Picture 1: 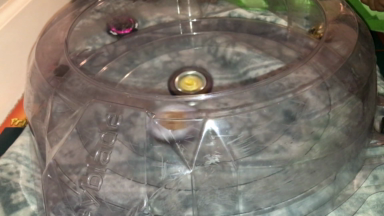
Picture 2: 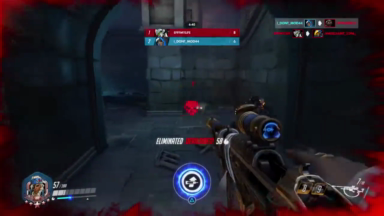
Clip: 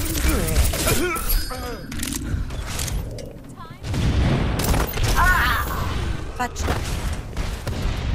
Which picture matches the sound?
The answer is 2